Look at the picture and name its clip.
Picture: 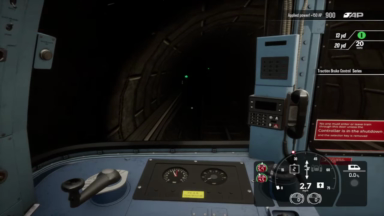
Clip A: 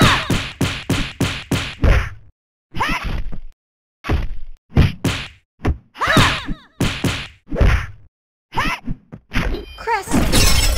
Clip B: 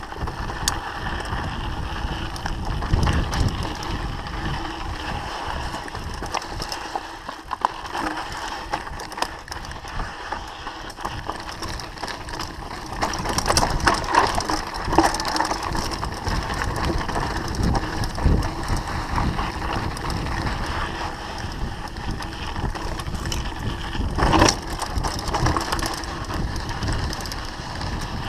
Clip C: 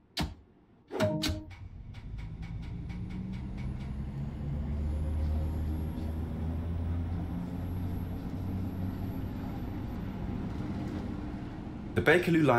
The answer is C